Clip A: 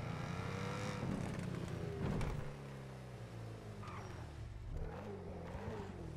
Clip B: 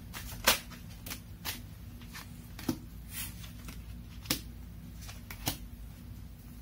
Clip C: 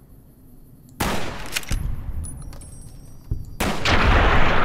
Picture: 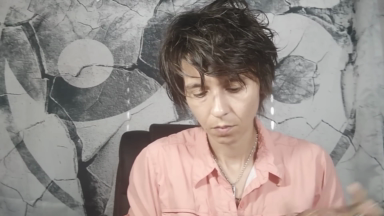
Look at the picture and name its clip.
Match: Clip B